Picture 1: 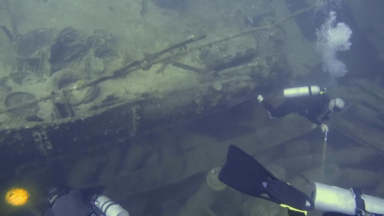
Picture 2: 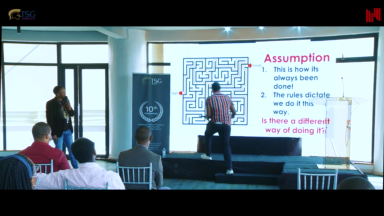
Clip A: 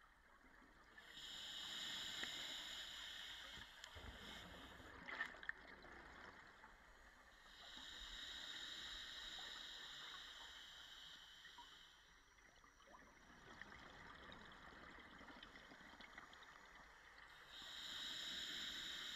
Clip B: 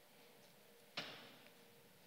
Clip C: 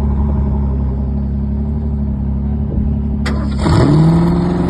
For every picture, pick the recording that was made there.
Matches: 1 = A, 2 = B